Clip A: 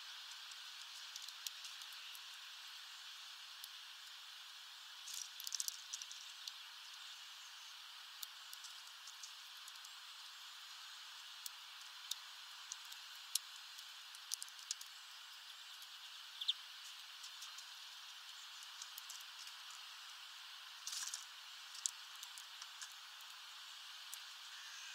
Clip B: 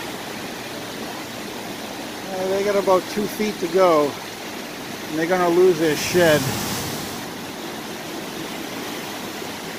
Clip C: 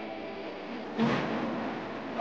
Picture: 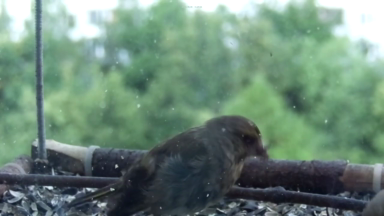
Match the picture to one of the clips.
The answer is A